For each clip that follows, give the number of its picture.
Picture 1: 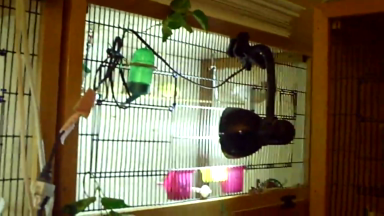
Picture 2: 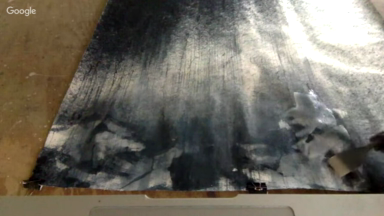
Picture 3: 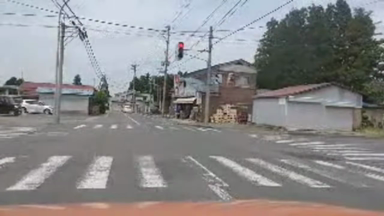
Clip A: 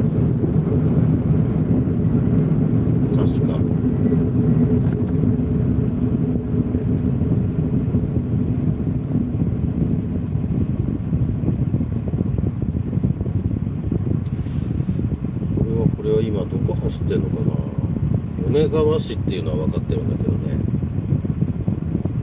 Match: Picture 3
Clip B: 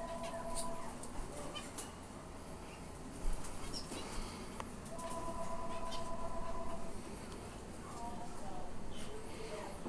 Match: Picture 1